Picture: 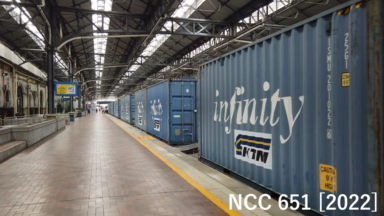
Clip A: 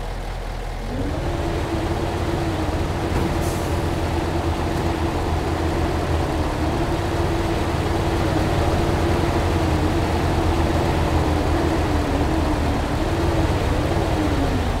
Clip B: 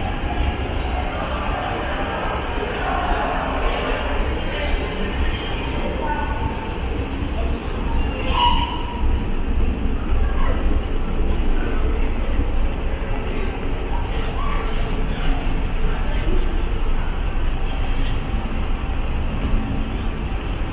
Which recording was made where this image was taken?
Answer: B